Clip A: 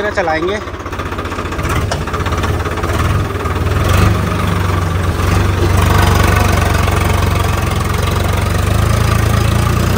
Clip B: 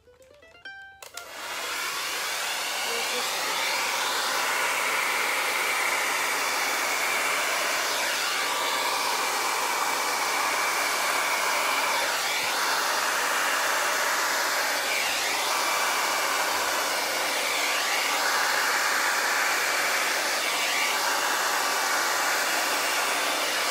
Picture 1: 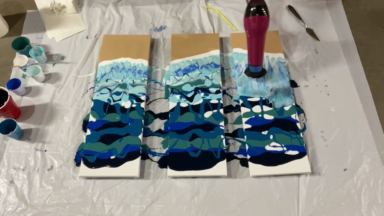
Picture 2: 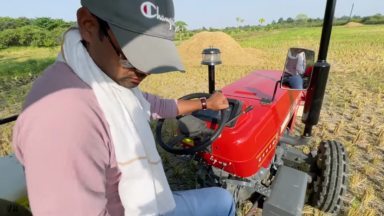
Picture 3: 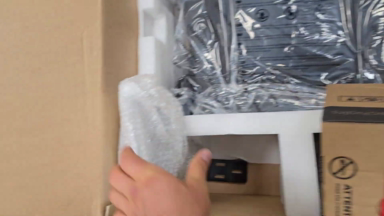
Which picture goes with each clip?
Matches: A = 2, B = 1